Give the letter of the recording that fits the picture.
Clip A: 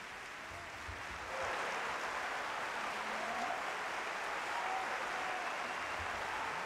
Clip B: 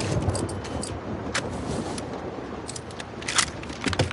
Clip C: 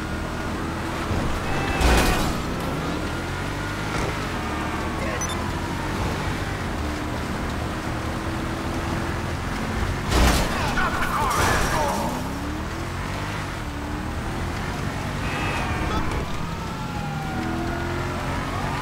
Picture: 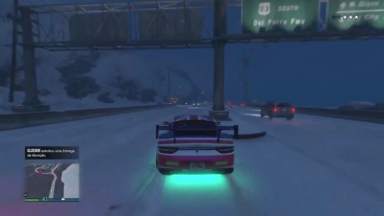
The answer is C